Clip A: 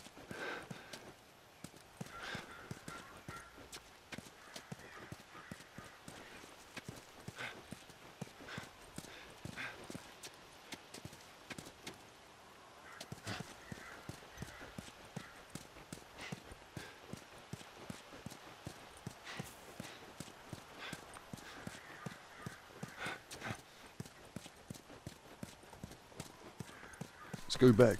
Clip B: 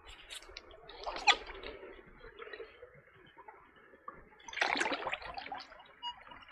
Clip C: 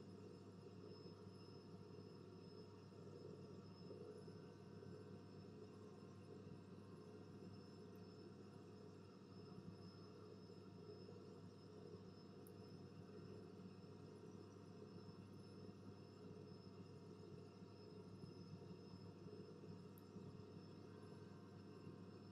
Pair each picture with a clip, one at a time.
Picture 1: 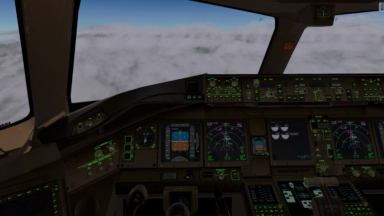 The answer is C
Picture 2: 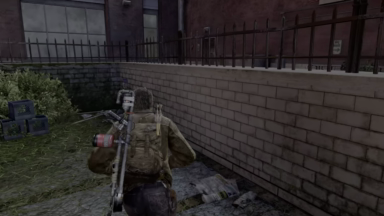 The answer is A